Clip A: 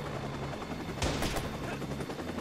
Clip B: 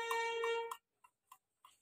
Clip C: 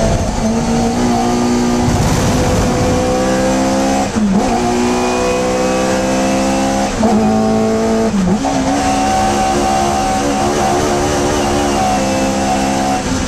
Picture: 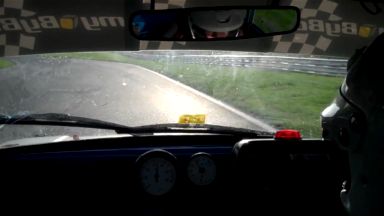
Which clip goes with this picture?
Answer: C